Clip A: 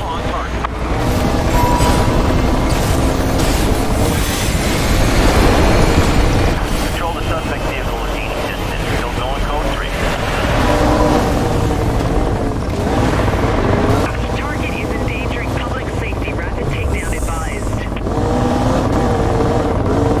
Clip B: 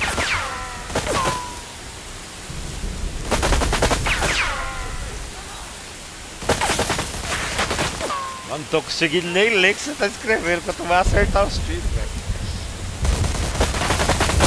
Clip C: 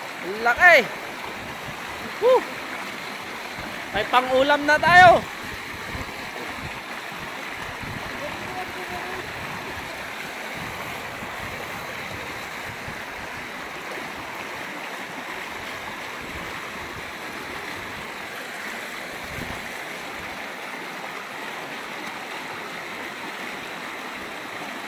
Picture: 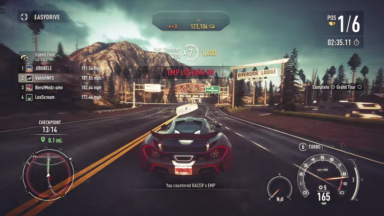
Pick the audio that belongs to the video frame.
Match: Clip A